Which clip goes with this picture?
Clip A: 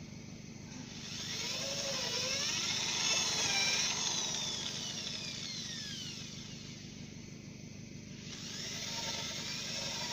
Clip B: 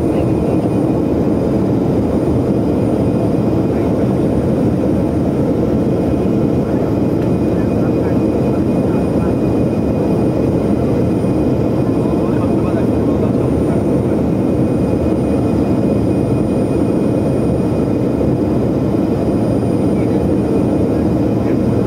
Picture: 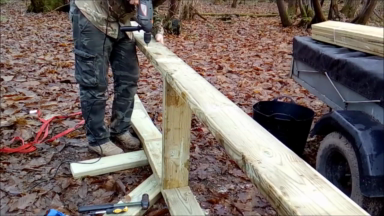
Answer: A